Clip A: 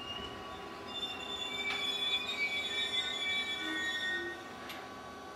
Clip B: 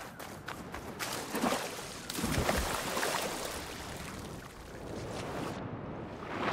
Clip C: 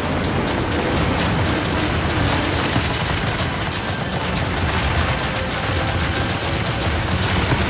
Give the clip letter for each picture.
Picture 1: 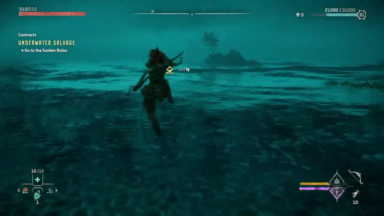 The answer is B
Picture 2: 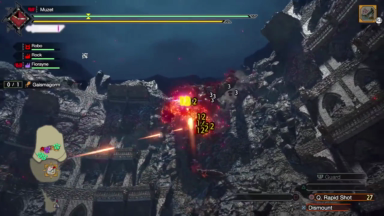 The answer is C